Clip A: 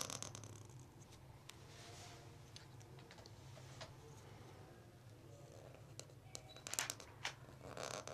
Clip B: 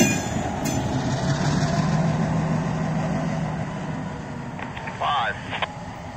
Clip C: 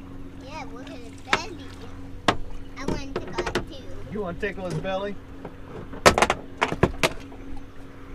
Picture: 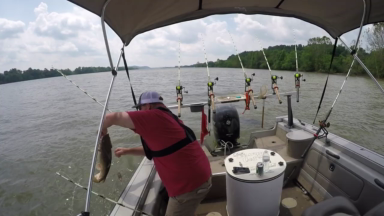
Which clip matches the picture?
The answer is C